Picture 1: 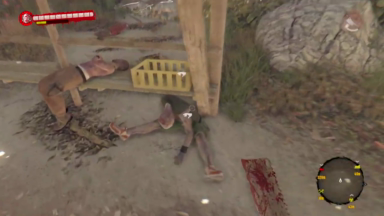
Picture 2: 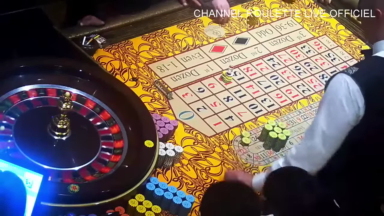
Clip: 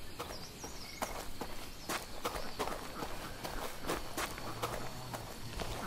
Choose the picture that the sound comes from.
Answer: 1